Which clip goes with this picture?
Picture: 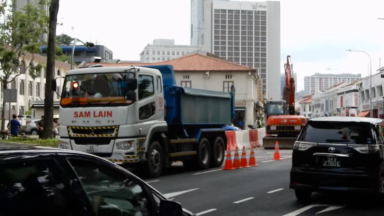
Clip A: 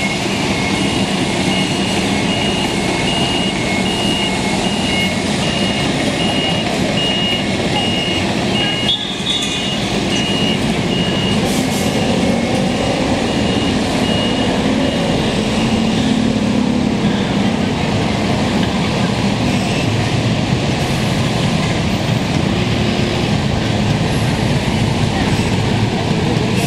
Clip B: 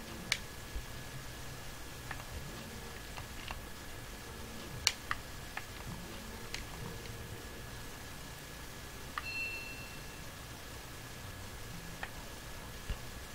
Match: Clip A